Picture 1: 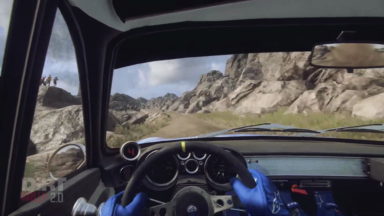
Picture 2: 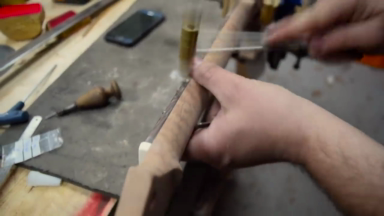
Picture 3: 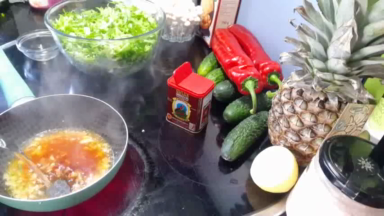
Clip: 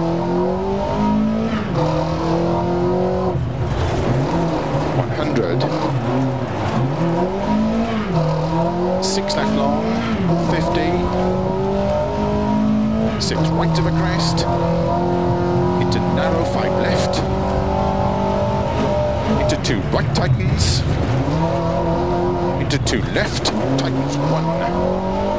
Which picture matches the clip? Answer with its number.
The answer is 1